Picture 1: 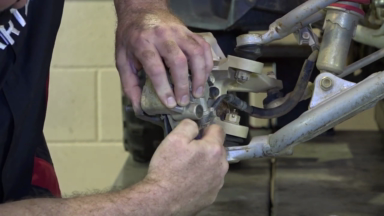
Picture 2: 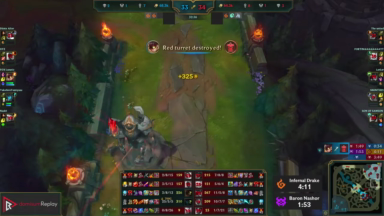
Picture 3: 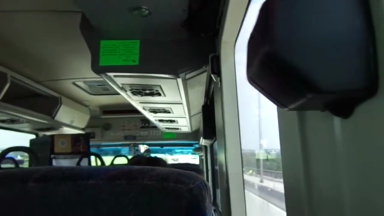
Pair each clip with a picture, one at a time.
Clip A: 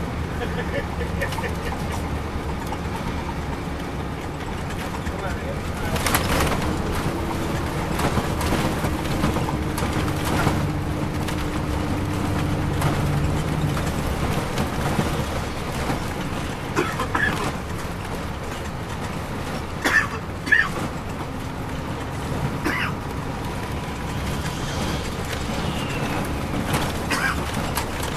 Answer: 3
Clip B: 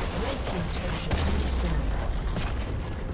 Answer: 2